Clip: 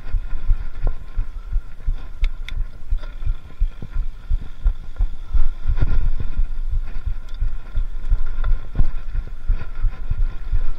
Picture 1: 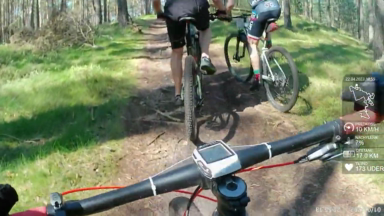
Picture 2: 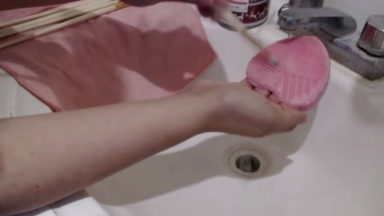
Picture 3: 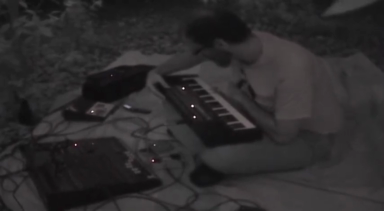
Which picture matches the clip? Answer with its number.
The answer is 1